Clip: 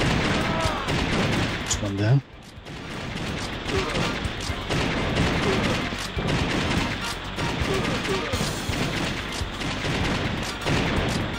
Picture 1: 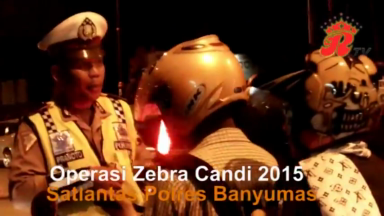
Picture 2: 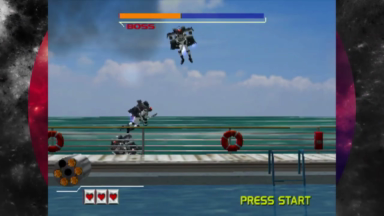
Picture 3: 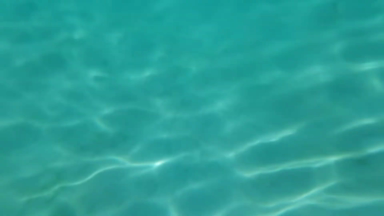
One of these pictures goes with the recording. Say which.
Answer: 2